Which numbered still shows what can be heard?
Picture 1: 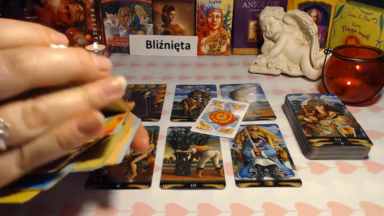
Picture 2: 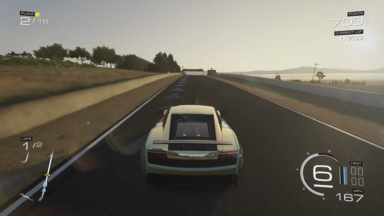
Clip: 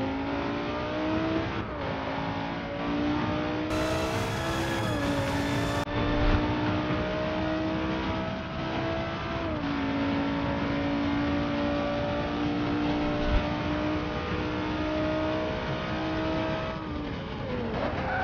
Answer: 2